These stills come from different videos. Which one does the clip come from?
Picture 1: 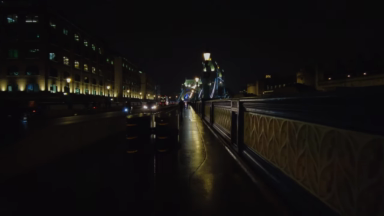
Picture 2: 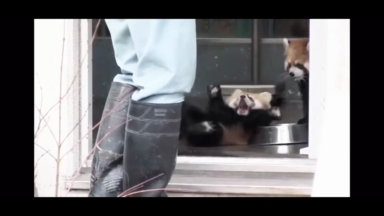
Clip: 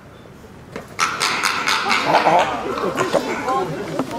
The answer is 2